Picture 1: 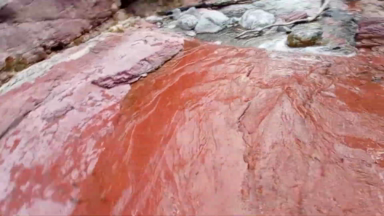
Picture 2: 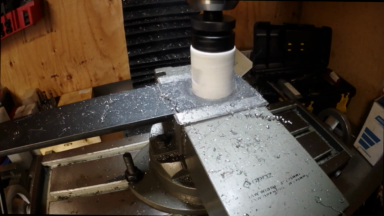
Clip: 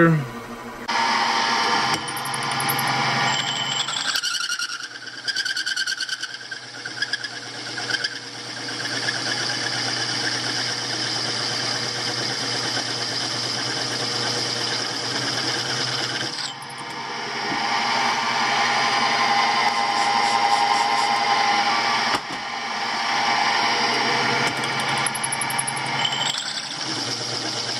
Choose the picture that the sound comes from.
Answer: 2